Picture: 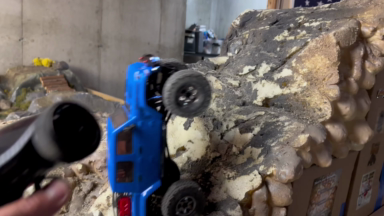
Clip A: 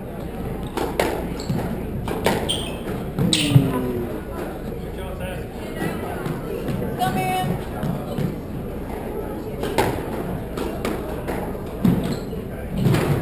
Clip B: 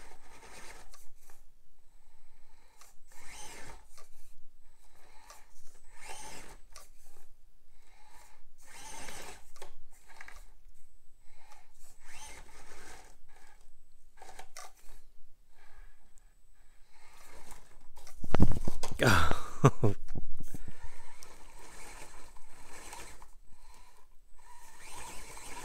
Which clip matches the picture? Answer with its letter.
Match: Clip B